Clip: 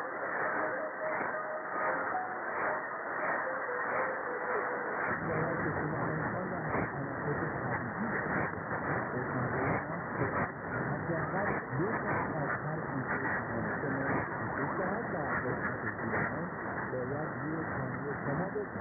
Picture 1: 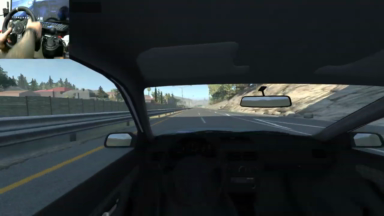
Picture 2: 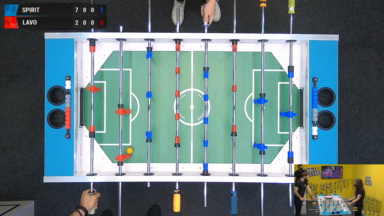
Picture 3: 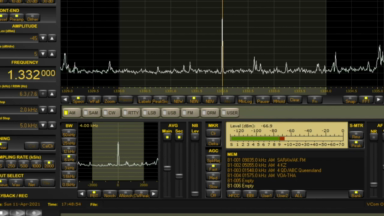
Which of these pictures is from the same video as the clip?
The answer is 3